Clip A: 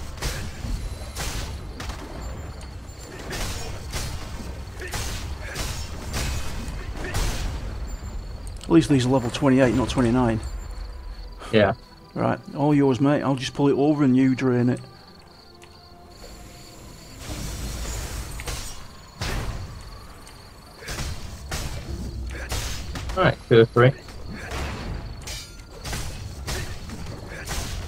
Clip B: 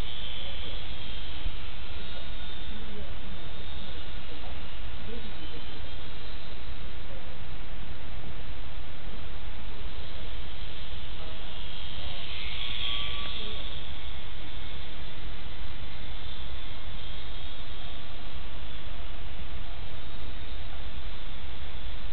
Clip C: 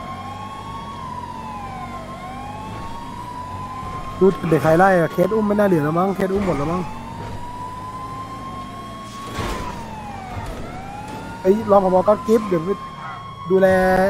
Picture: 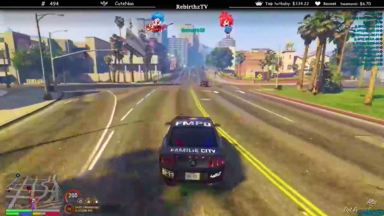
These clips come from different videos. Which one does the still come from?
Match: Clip C